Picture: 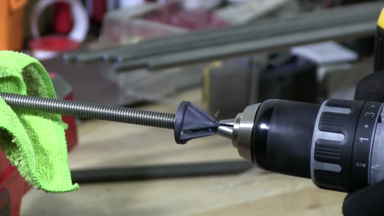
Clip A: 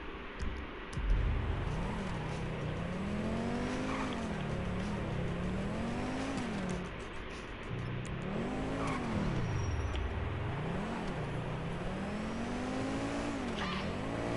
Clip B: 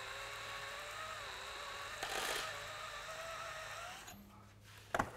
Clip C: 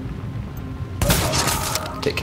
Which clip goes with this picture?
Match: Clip B